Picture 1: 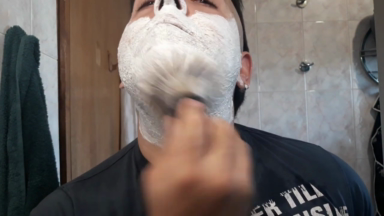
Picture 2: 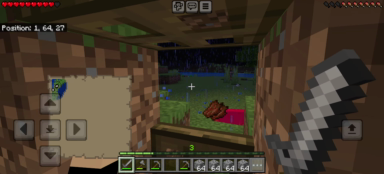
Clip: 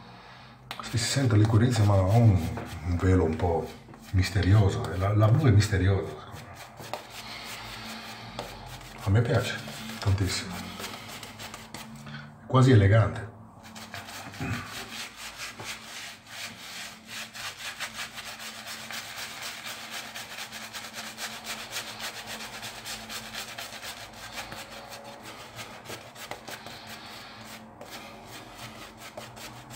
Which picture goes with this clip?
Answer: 1